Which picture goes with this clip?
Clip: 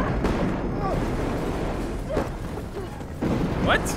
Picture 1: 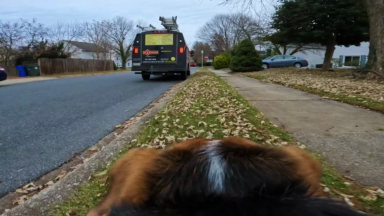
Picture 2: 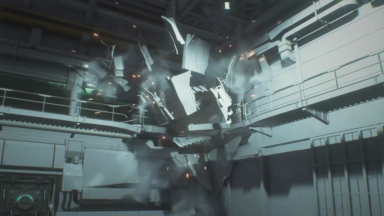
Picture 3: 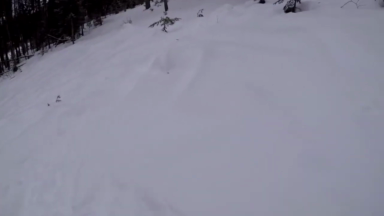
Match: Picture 2